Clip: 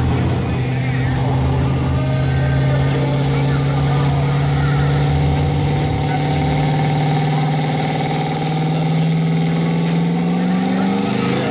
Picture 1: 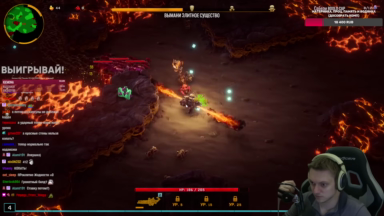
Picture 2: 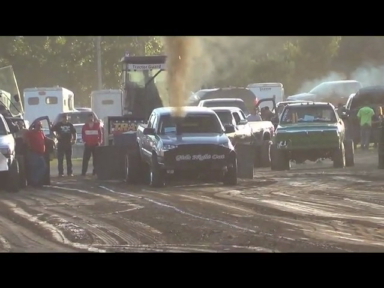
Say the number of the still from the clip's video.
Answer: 2